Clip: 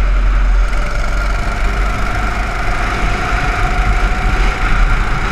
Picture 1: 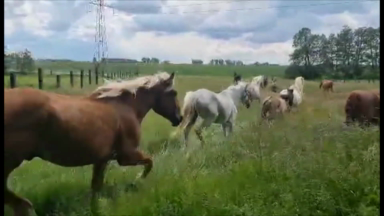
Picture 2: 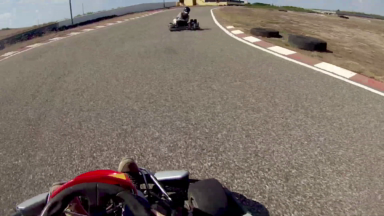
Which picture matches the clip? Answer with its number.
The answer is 2